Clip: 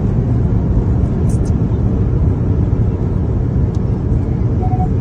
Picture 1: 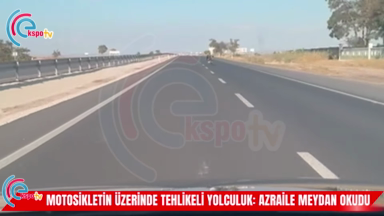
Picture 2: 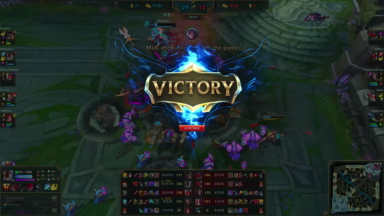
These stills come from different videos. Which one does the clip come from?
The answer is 1